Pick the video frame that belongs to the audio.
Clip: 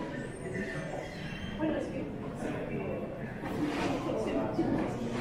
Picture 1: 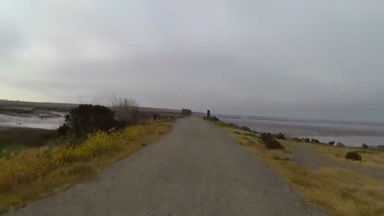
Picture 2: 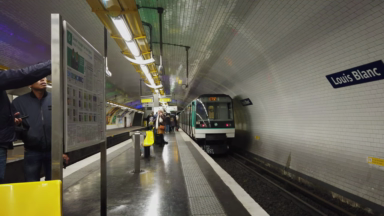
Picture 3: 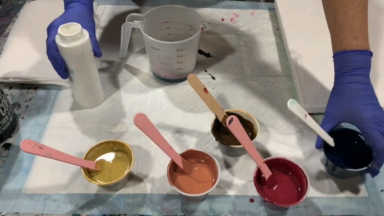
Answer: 2